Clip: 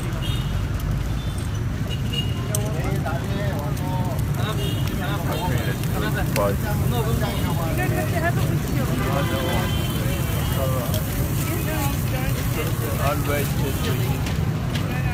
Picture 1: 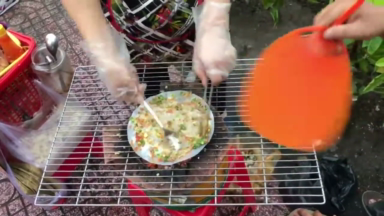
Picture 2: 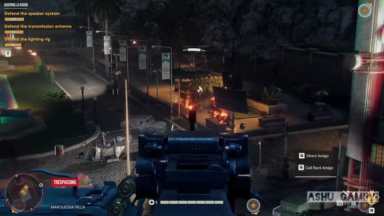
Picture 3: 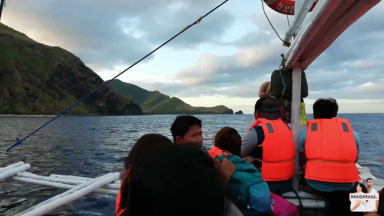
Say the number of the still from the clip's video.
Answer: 1